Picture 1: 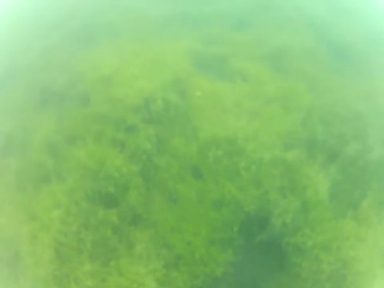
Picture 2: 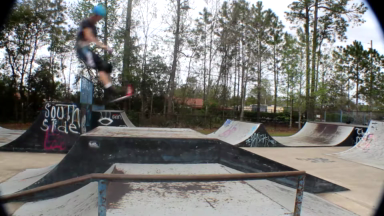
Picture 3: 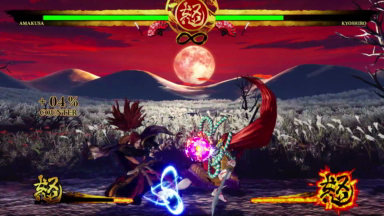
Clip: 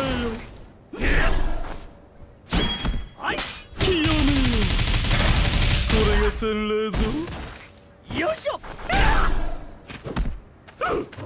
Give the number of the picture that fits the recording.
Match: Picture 3